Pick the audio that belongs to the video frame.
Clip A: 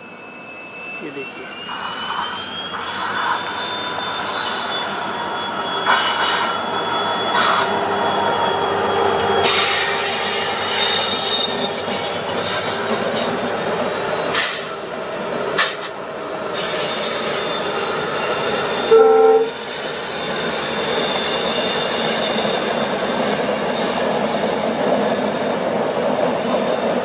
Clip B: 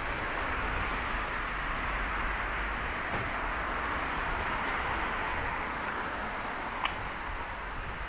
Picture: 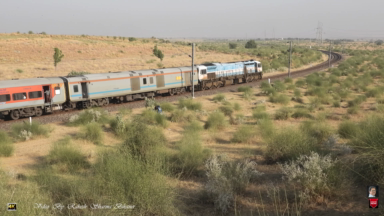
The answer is A